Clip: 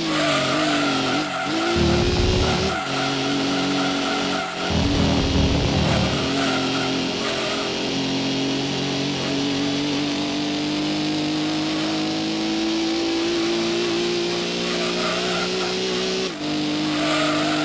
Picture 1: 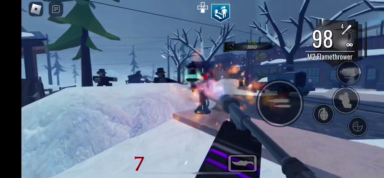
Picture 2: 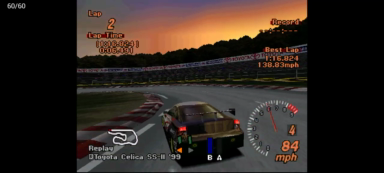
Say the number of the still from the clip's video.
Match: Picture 2